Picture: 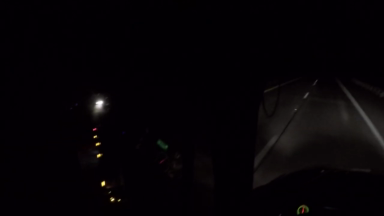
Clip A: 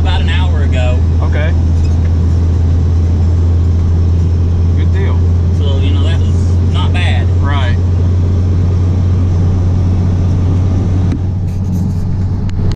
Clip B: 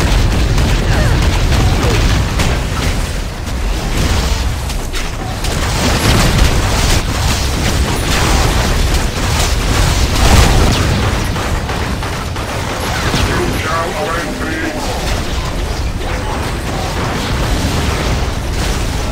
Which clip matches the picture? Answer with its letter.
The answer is A